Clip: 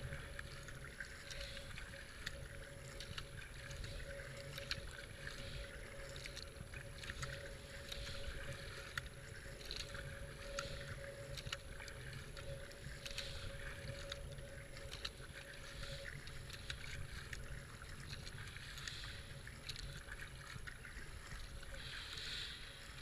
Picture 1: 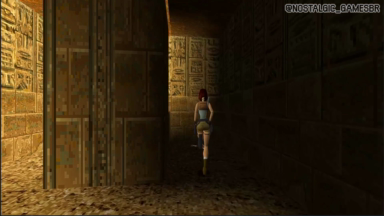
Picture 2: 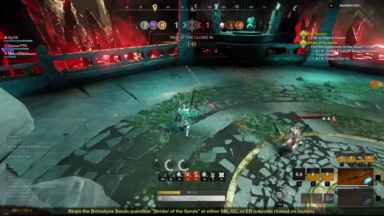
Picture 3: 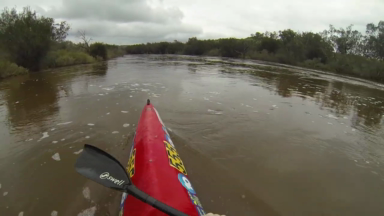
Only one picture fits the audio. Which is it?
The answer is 3